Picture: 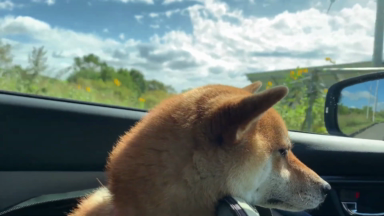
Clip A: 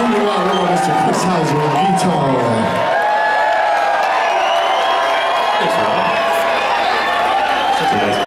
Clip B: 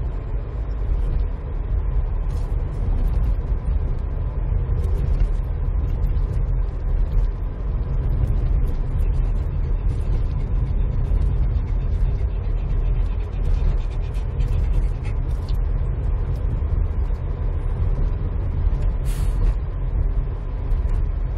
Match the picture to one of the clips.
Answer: B